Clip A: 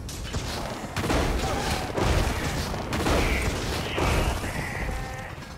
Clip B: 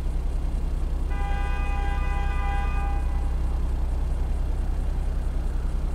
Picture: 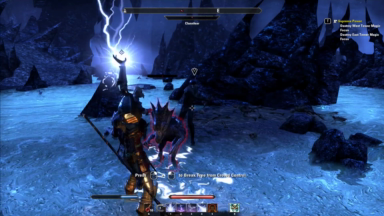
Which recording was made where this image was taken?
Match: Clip A